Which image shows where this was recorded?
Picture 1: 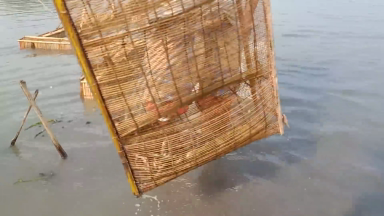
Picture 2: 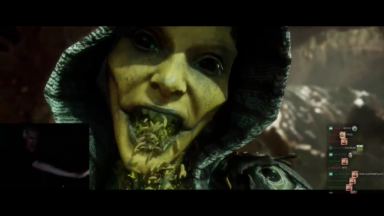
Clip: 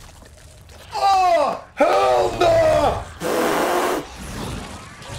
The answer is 2